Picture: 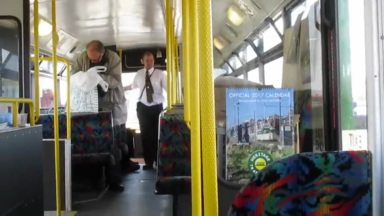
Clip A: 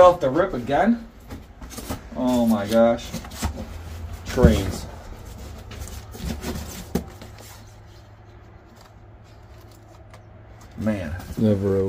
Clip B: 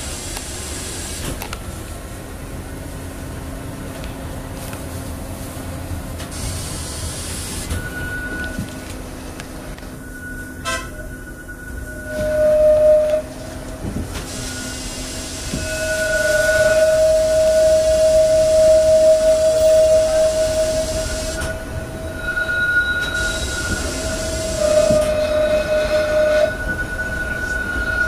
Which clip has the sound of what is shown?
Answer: B